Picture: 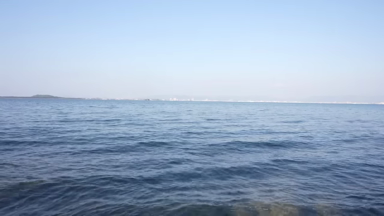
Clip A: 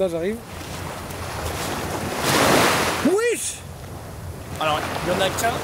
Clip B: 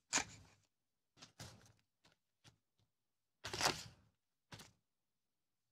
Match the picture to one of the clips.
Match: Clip A